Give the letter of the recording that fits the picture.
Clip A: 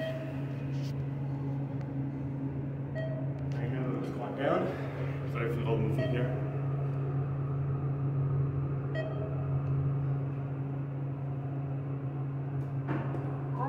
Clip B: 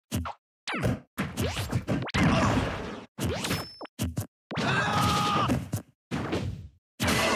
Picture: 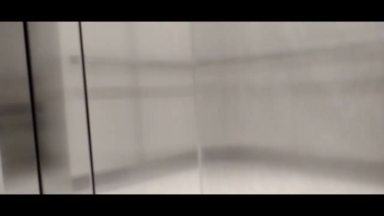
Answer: A